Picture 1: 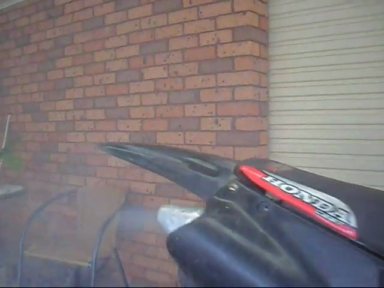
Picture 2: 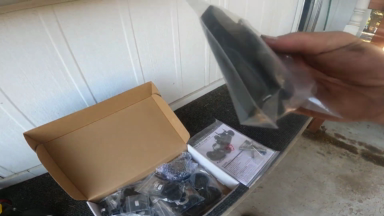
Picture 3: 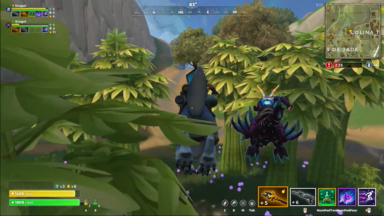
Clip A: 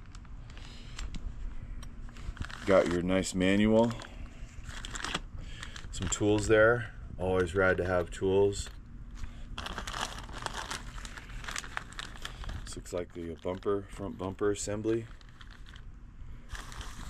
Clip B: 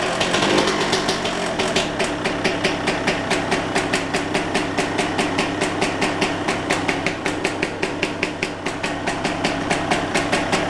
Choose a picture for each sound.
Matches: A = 2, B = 1